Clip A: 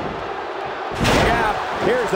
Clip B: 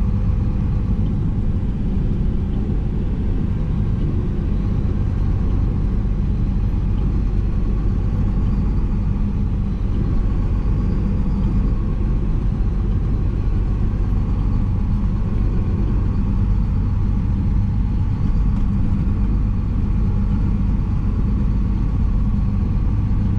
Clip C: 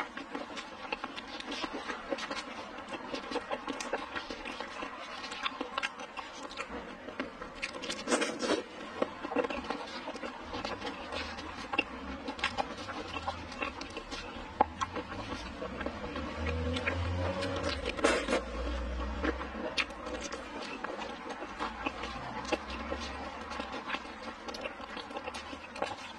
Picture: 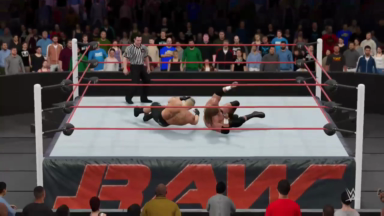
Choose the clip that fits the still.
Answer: A